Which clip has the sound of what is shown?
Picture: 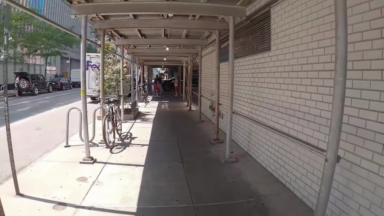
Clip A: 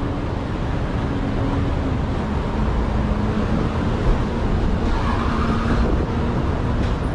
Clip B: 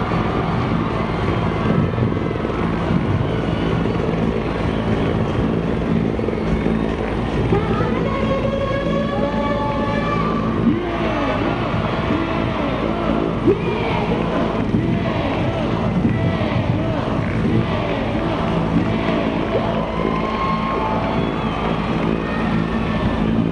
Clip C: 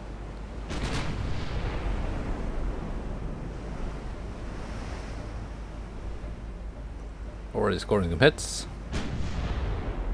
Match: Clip A